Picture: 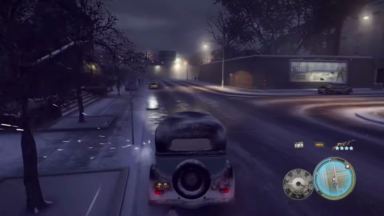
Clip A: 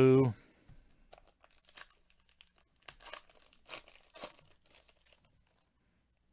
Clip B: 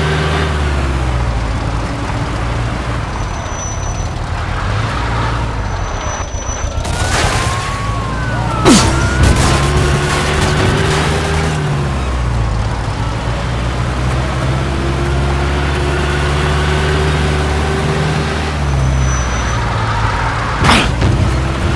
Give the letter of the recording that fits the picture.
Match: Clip B